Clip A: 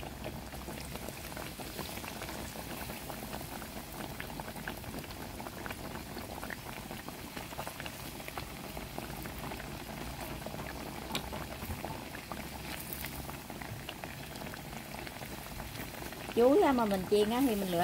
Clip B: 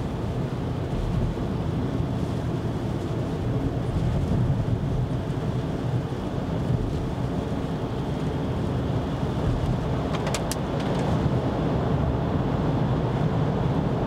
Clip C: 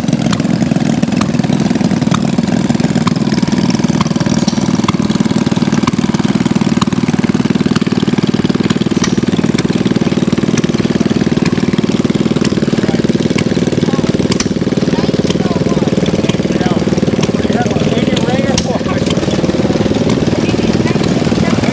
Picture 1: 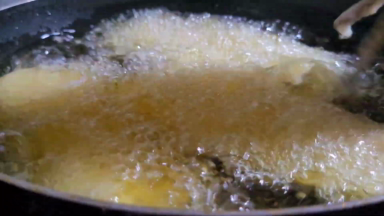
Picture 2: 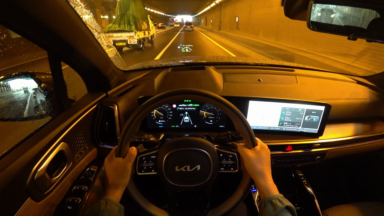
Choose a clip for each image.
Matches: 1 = A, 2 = B